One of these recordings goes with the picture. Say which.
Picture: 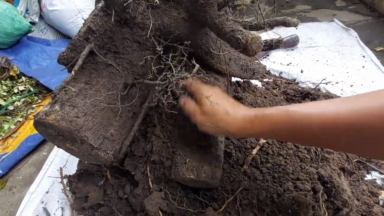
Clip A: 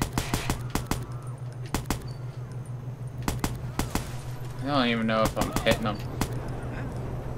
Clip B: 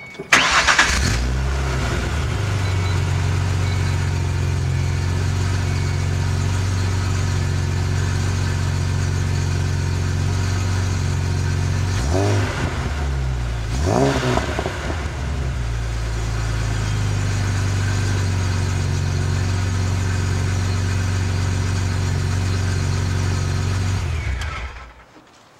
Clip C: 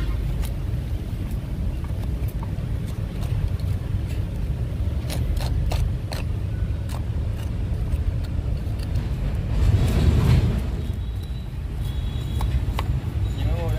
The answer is C